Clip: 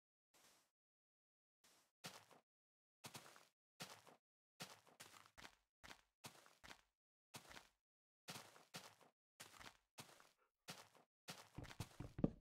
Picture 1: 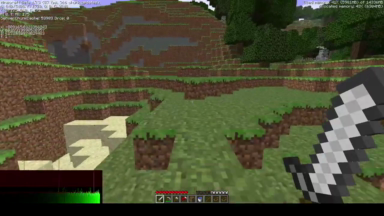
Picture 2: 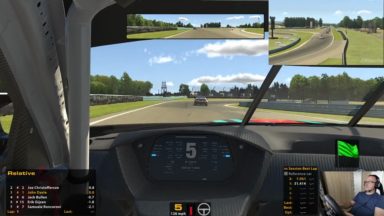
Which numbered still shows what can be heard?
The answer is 1